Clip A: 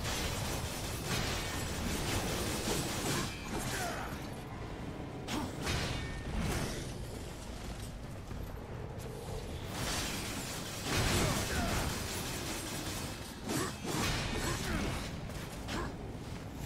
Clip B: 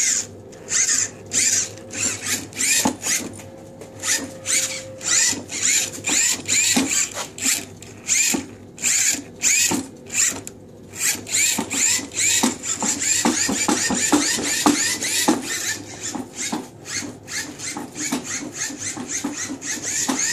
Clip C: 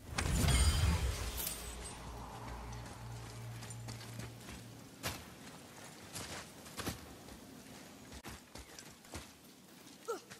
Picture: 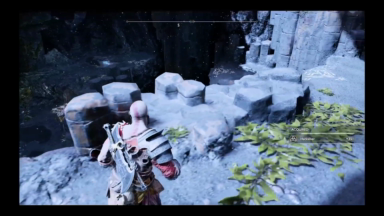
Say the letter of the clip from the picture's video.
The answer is C